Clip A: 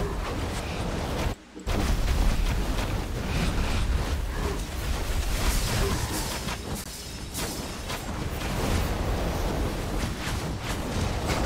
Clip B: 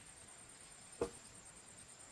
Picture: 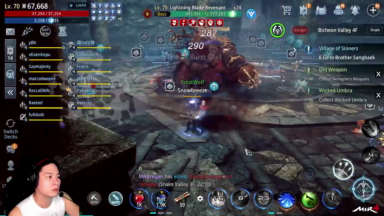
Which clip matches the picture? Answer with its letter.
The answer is A